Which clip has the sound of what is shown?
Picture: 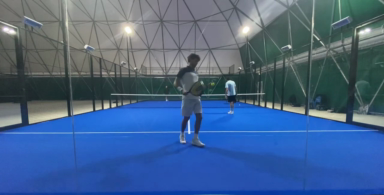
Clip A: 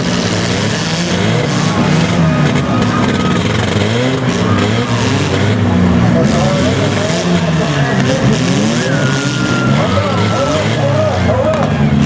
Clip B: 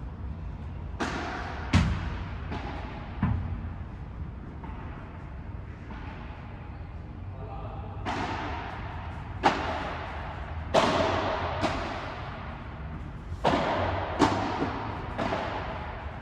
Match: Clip B